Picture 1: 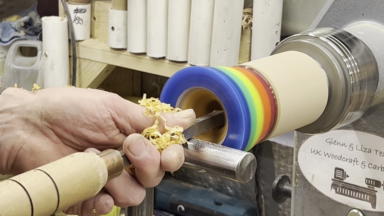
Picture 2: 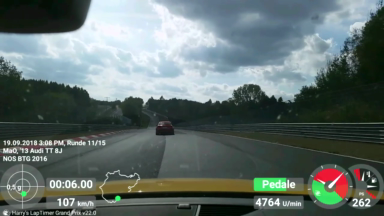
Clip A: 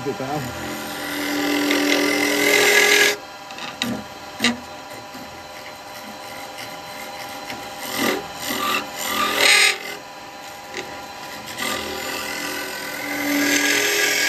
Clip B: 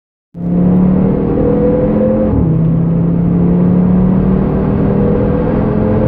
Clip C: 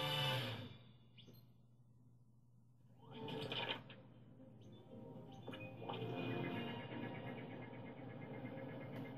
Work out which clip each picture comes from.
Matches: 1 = A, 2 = B